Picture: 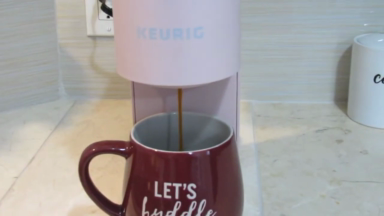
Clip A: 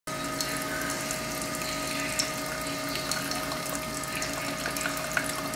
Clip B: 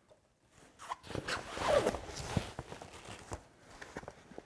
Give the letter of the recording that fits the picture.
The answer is A